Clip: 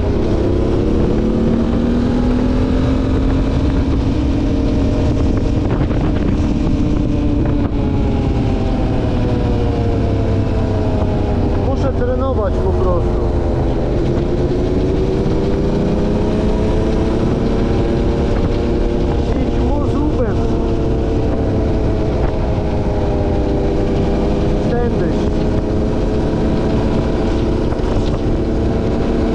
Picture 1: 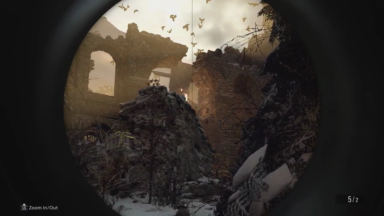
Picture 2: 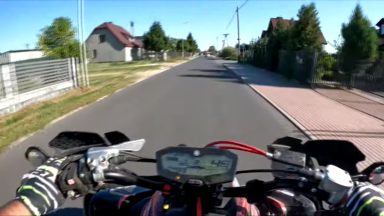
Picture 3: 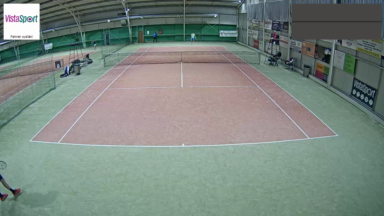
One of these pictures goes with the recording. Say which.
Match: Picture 2